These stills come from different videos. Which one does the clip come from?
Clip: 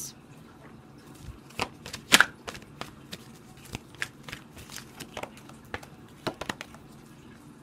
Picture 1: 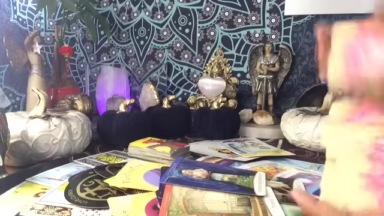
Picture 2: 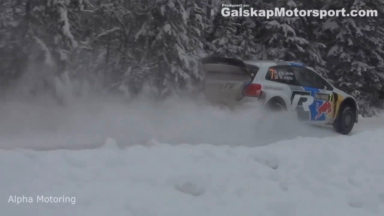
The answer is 1